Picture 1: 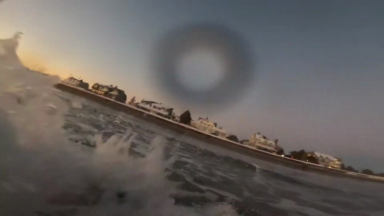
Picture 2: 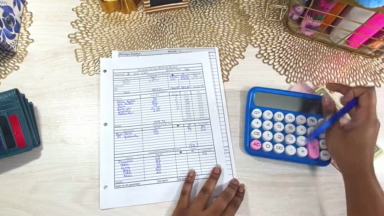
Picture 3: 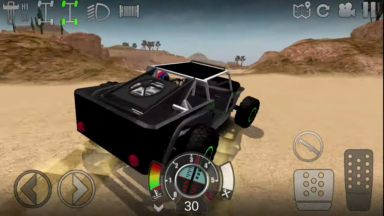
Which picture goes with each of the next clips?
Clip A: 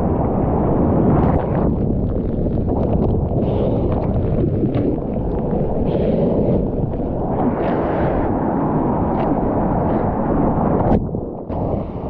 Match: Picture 1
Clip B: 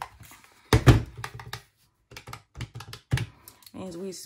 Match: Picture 2